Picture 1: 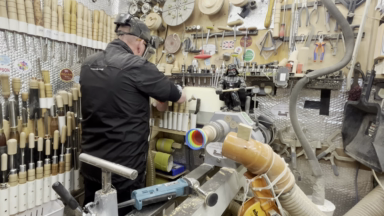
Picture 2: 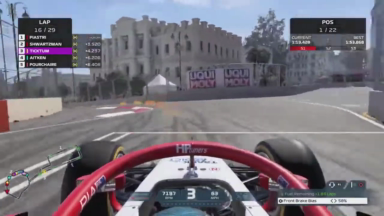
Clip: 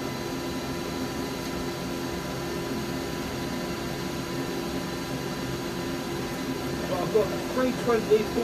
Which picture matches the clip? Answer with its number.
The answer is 1